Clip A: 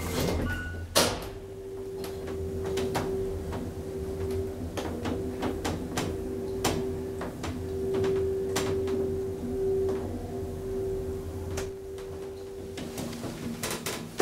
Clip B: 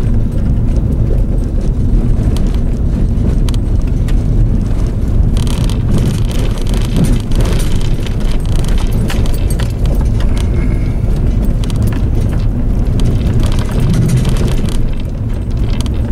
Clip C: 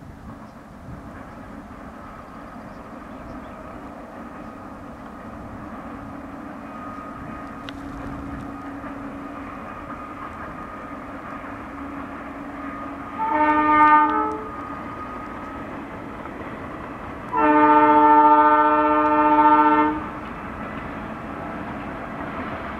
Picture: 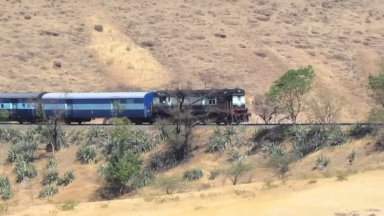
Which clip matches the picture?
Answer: C